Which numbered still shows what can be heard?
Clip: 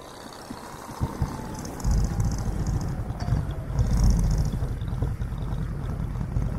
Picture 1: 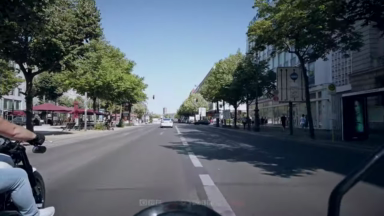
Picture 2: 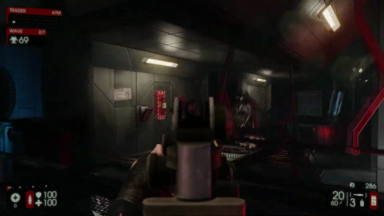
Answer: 1